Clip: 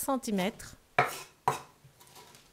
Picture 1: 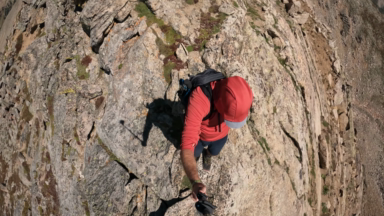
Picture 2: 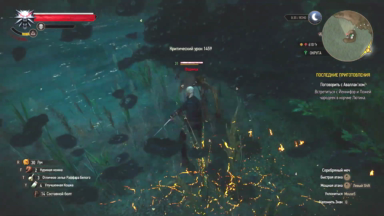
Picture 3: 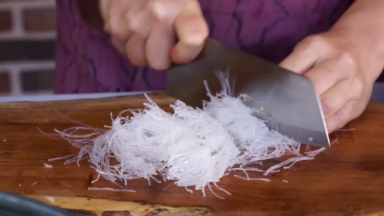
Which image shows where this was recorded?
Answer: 3